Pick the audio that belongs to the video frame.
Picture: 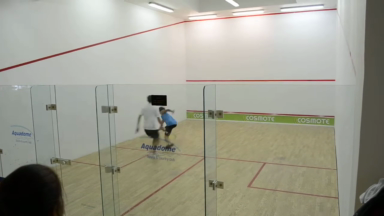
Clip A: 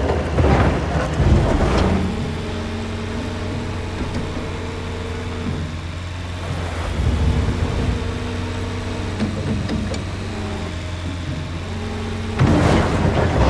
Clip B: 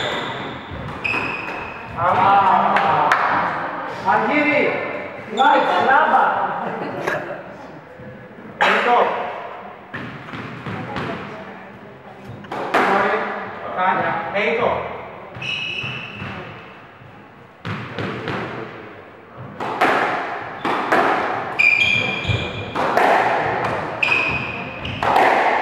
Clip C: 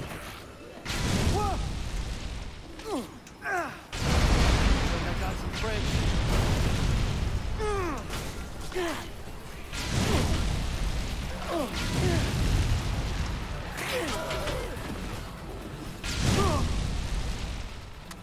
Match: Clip B